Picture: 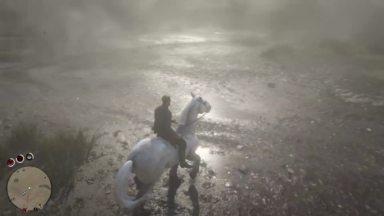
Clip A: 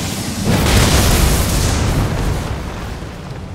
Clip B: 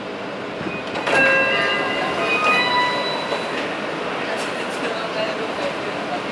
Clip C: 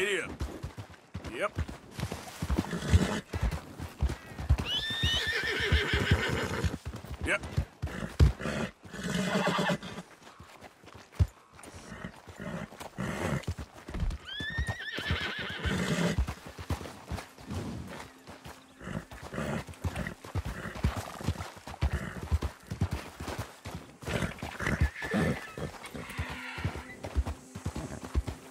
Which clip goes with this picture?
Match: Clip C